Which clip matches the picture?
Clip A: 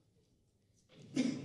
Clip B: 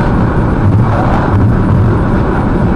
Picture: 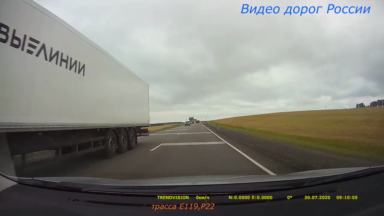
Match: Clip B